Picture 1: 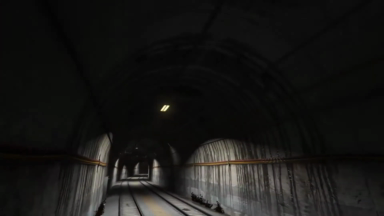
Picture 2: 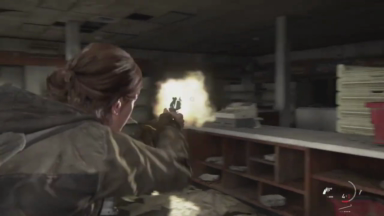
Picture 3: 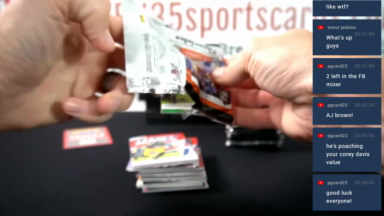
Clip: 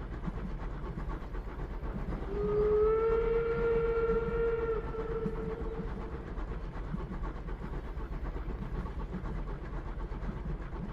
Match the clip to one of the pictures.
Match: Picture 1